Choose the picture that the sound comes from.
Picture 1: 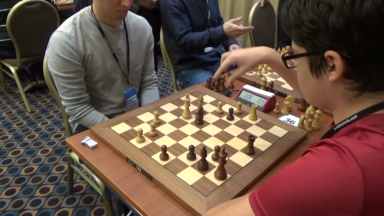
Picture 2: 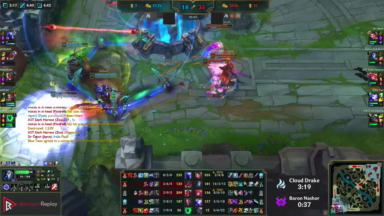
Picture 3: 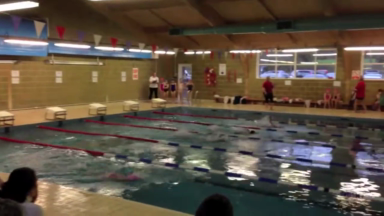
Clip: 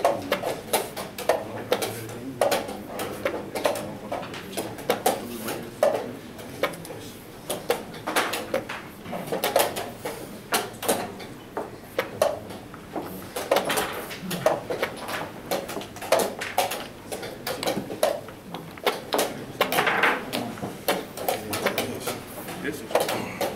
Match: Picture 1